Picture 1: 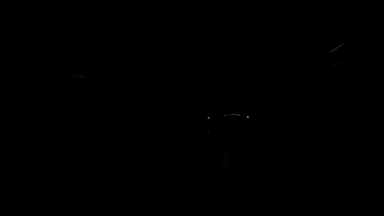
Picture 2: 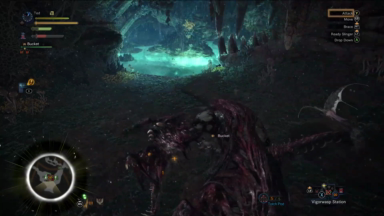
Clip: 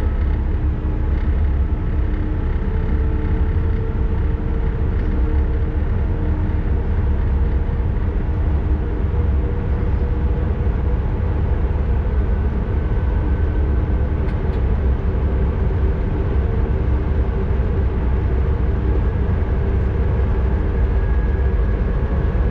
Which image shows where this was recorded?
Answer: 1